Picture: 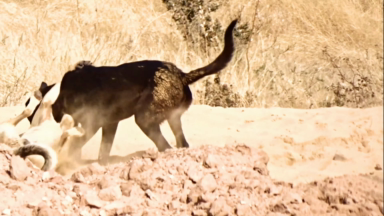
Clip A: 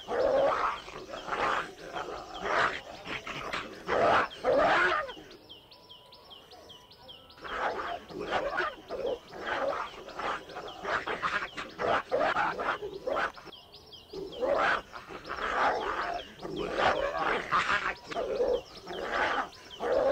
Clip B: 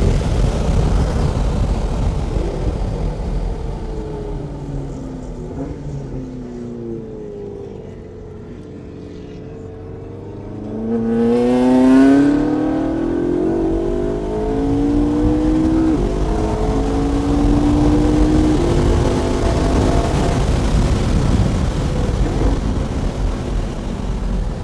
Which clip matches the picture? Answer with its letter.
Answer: A